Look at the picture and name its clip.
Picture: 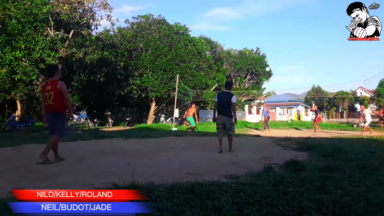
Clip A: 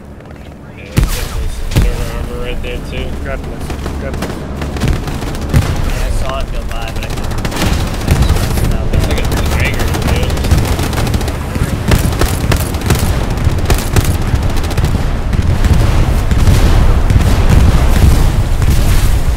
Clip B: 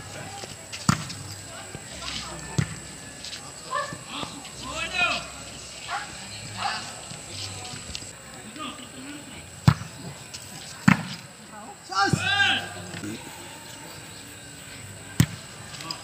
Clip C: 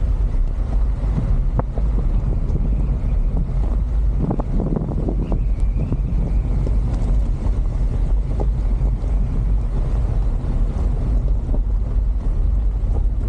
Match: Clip B